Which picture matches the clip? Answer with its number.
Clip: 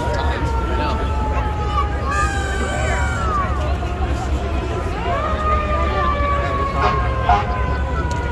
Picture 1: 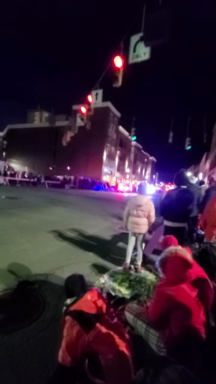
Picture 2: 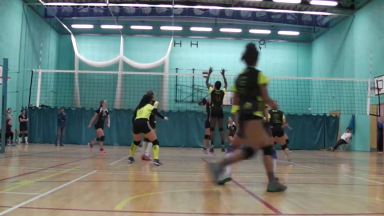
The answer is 1